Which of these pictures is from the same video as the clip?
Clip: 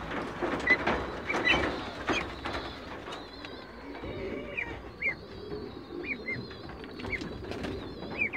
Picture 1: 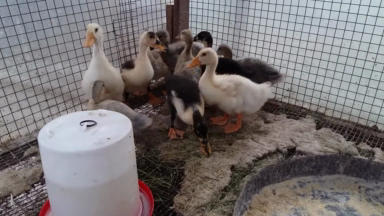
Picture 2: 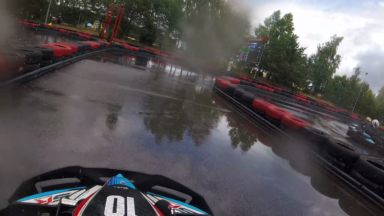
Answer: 1